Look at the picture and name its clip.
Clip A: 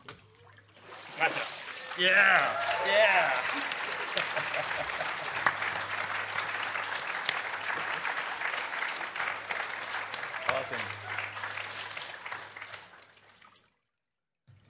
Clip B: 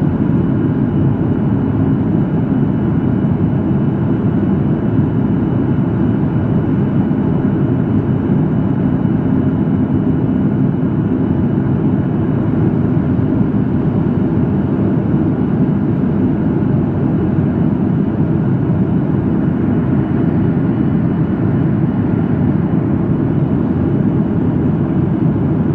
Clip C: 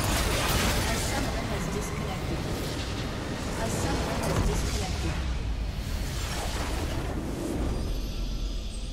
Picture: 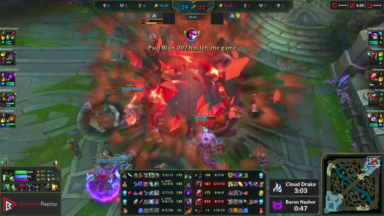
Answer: C